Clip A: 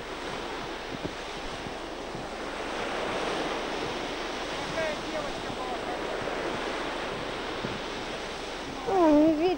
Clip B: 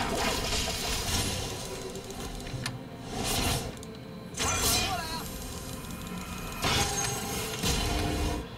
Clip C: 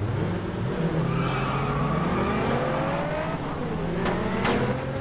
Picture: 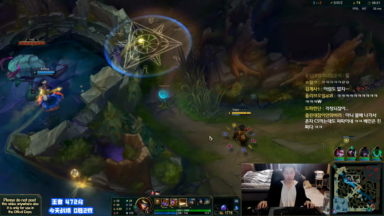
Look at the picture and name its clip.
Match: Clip B